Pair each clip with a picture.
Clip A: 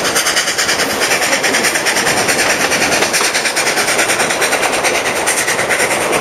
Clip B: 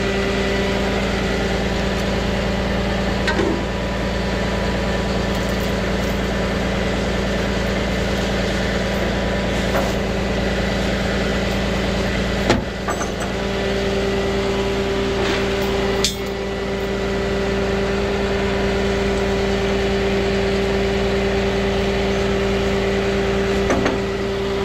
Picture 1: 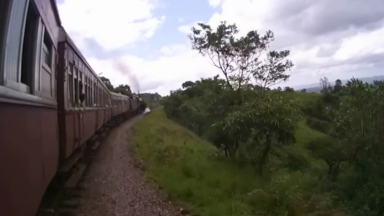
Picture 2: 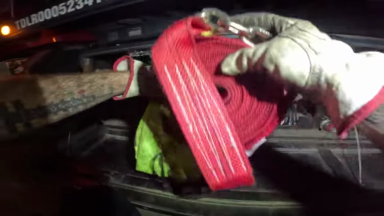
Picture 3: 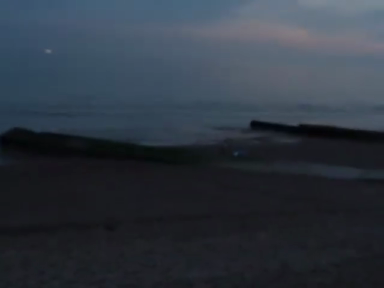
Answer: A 1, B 2